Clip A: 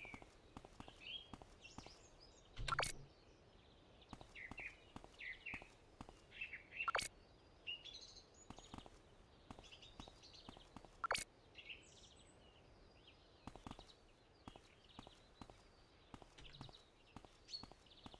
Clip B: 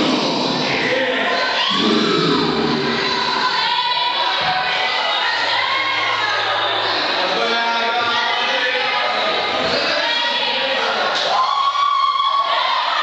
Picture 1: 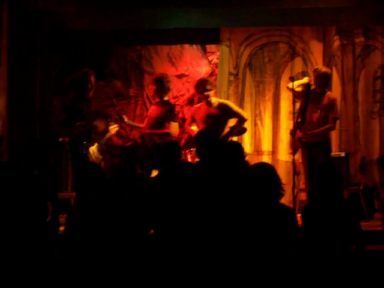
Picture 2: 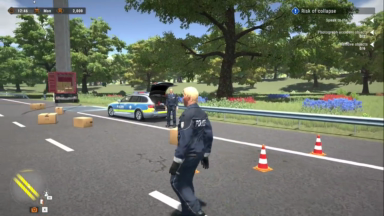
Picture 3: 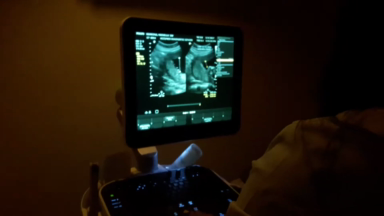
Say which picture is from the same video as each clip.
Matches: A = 2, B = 1